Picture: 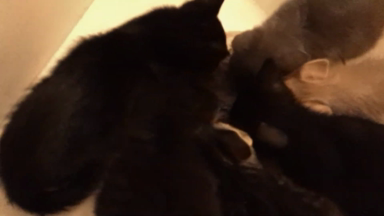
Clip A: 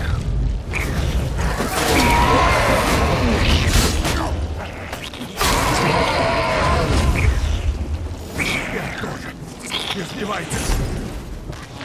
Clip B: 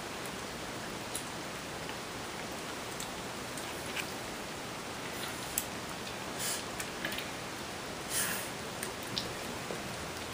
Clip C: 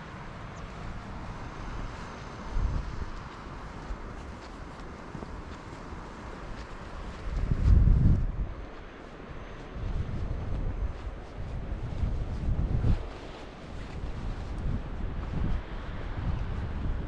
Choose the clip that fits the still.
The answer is B